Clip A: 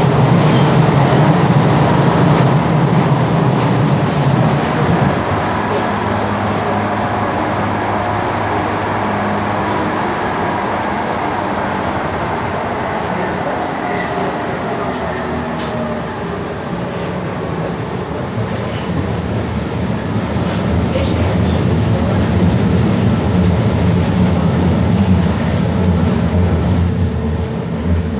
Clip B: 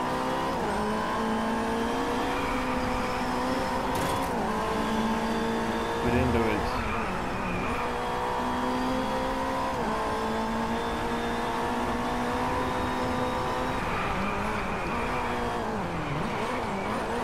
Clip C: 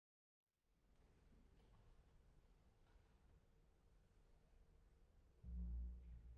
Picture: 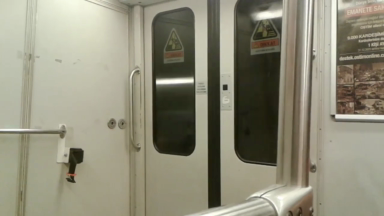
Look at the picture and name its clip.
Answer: A